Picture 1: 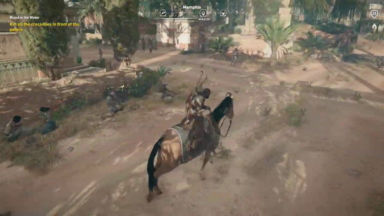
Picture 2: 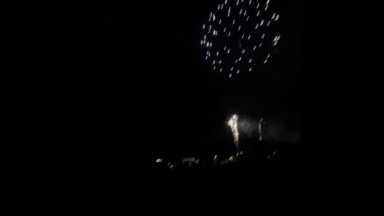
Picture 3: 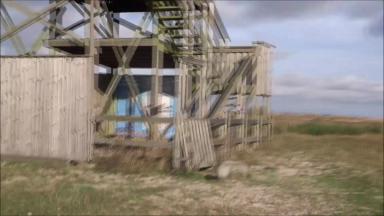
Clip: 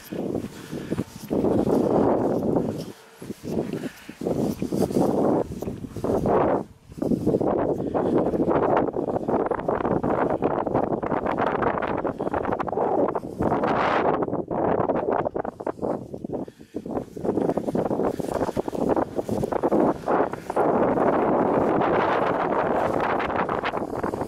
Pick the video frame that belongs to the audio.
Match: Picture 3